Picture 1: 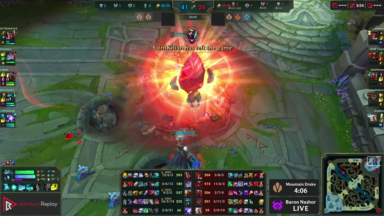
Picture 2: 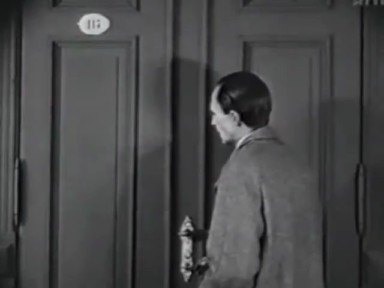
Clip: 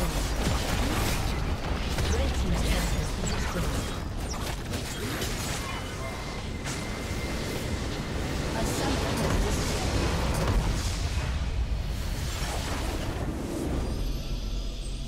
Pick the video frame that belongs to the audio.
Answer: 1